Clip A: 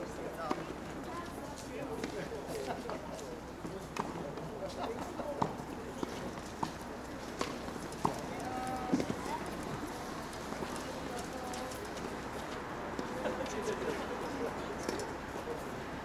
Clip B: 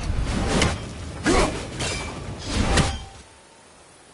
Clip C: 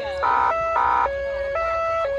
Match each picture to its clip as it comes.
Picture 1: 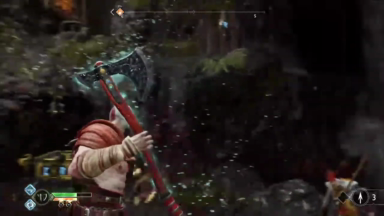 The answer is B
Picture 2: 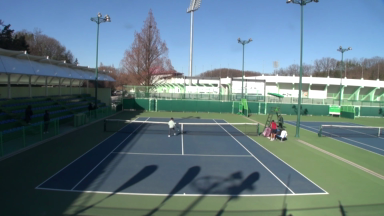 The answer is A